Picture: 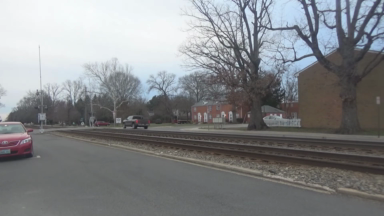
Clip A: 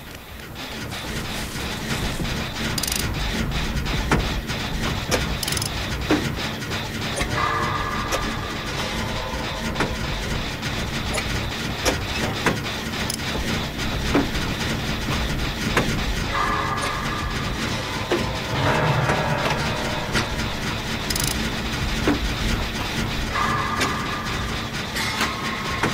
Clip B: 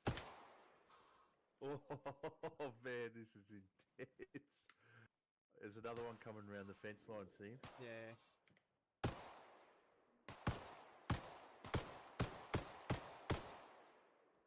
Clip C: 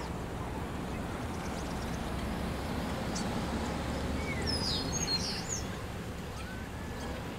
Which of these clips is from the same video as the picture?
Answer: C